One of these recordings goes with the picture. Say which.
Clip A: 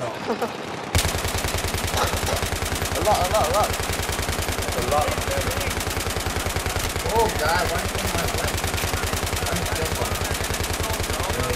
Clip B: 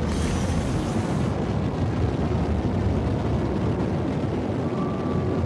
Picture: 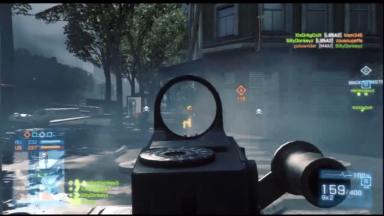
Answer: A